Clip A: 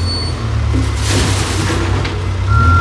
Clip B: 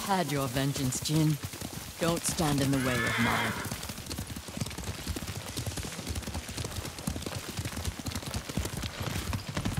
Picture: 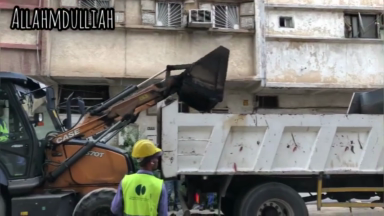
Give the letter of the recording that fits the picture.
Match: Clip A